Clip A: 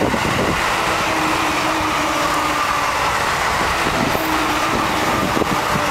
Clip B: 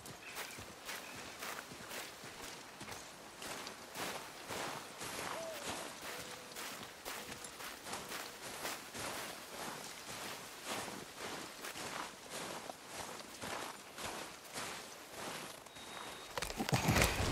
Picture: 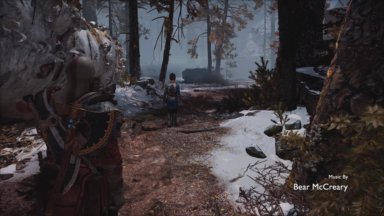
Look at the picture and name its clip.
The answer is B